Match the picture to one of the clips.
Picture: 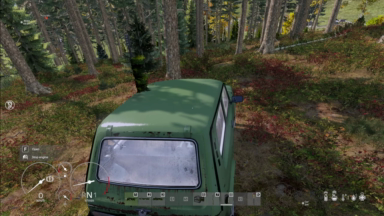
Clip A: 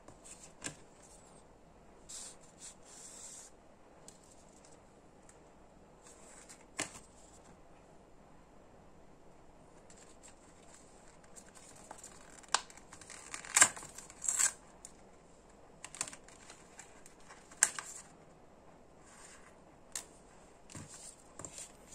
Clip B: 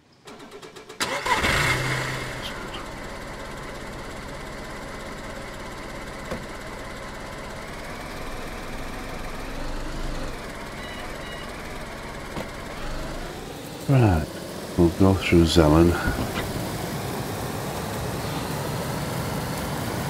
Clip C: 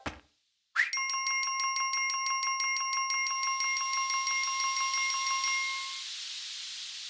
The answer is B